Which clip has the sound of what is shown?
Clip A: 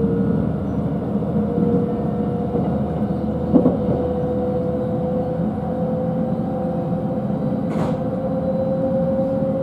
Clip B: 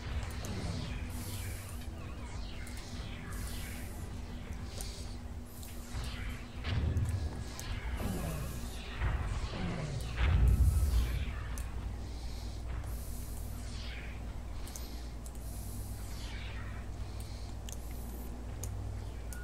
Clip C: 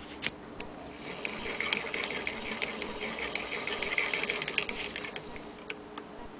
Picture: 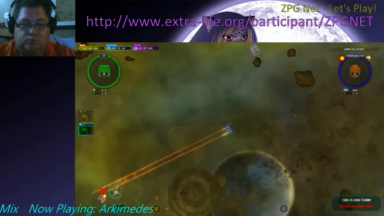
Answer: B